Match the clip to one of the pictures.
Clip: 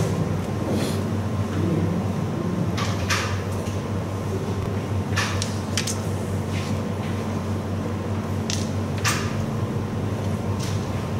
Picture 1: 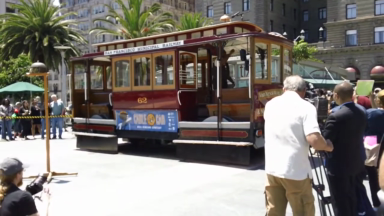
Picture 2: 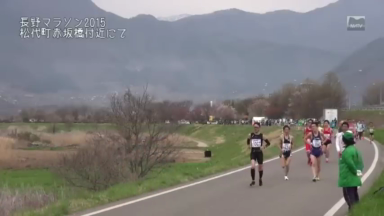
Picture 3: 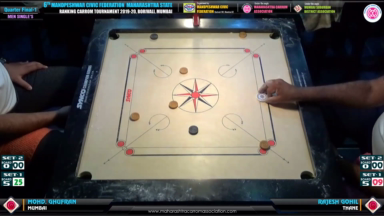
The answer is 3